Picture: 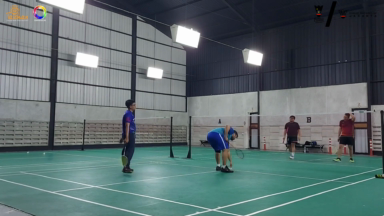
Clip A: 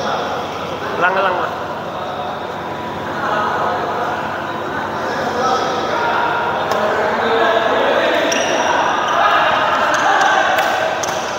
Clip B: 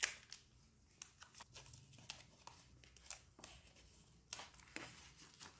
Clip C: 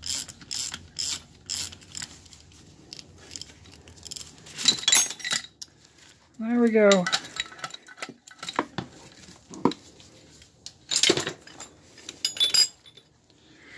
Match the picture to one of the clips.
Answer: A